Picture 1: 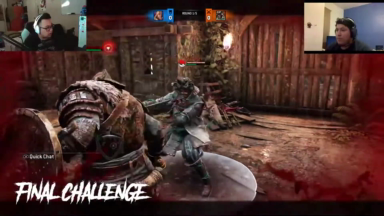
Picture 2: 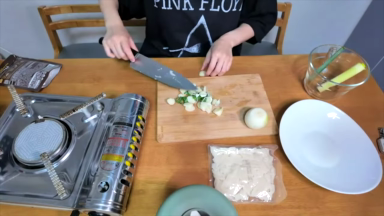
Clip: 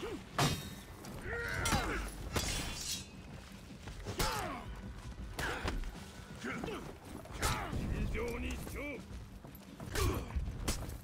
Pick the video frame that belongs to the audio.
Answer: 1